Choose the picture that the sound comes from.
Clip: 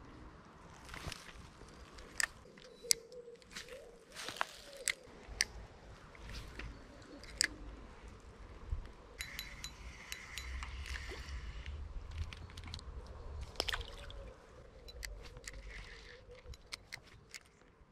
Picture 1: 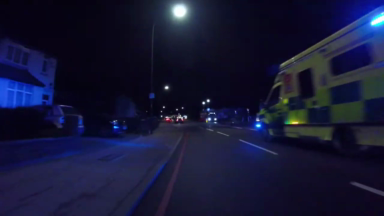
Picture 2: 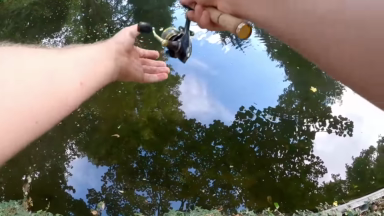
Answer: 2